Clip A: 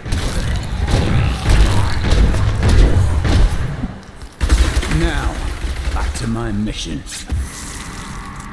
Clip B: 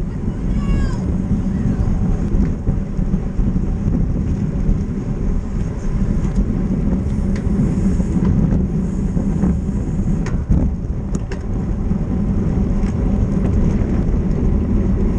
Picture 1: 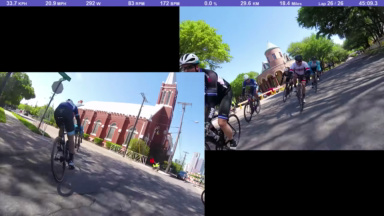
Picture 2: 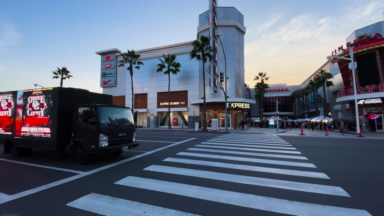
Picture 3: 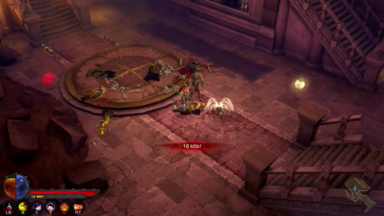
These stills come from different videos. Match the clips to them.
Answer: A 3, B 1